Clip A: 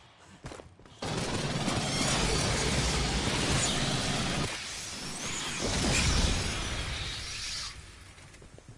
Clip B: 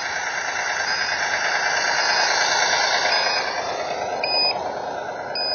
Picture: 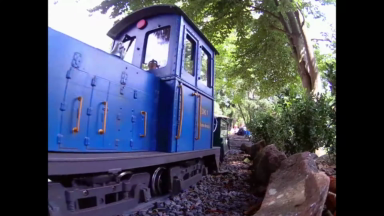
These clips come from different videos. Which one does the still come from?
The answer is B